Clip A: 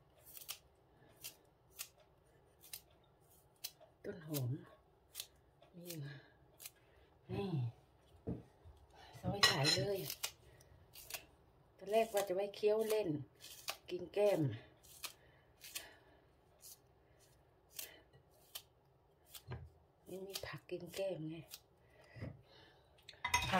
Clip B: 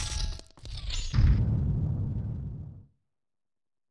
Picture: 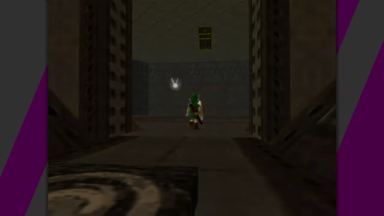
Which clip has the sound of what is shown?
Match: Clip B